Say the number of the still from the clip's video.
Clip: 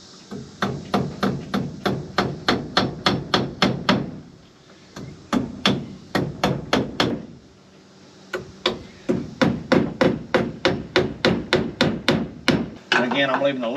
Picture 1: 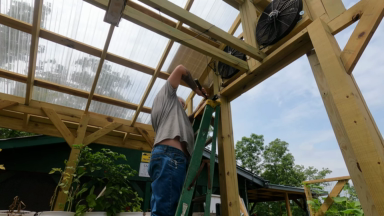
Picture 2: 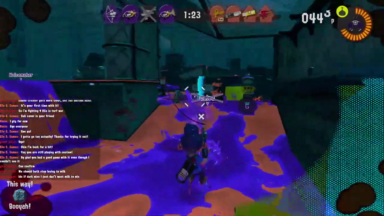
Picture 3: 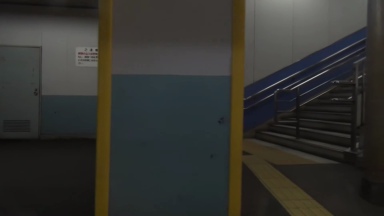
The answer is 1